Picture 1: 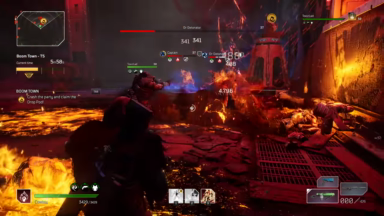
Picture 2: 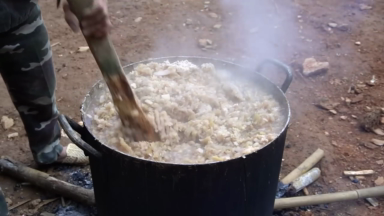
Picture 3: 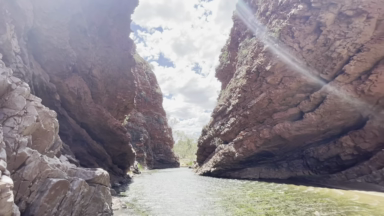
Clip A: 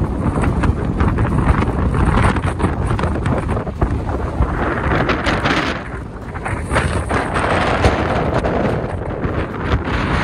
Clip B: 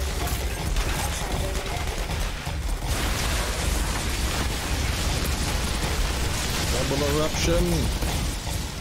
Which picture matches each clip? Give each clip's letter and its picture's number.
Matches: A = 3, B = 1